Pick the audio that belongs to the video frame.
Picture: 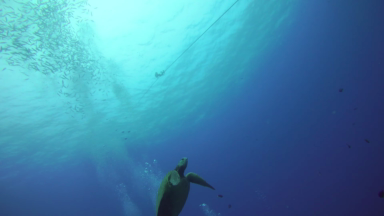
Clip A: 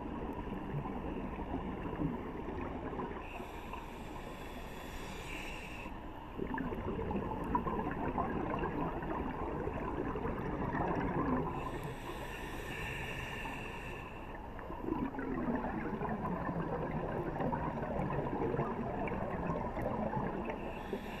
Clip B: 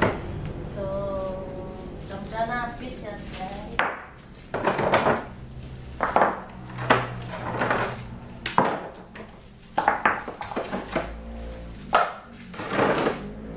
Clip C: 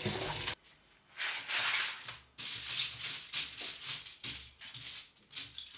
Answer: A